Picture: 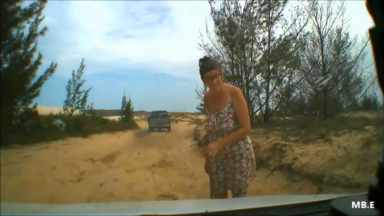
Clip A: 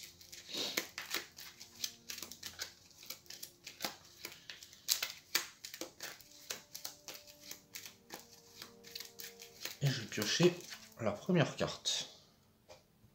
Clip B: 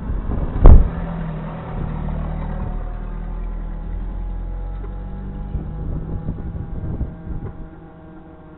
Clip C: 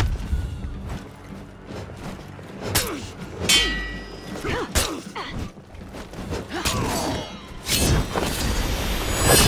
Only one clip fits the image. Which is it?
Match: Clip B